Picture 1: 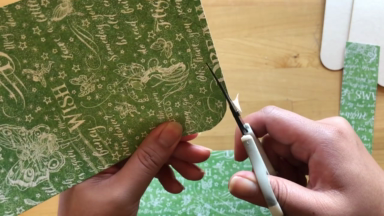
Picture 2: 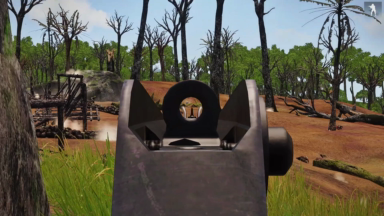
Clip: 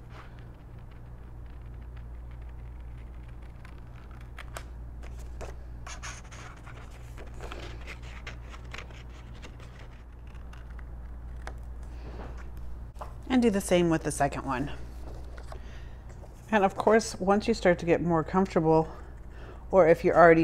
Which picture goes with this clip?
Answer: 1